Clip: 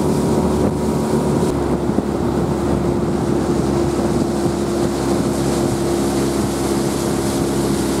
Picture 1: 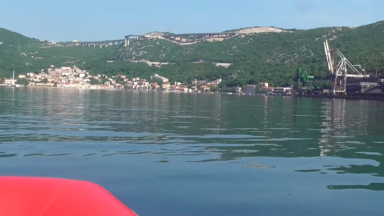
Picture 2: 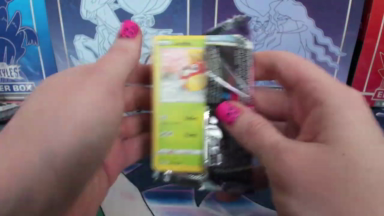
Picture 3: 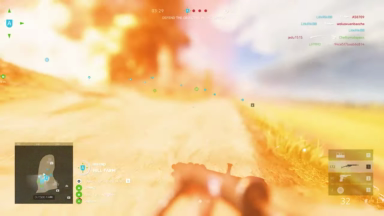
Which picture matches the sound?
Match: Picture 1